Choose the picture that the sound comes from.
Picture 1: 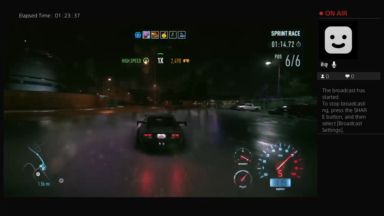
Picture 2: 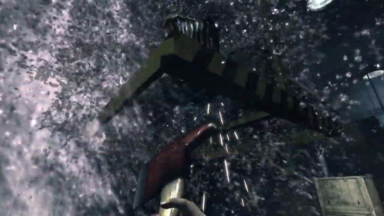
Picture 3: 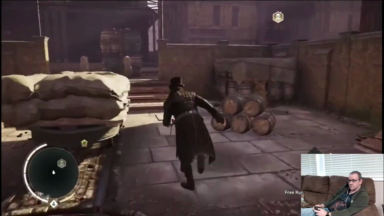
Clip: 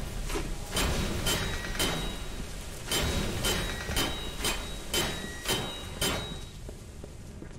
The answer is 2